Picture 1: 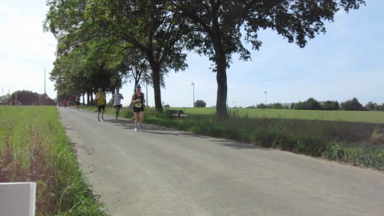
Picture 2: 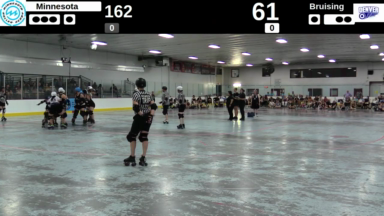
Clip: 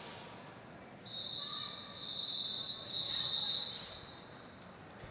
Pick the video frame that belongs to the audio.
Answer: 2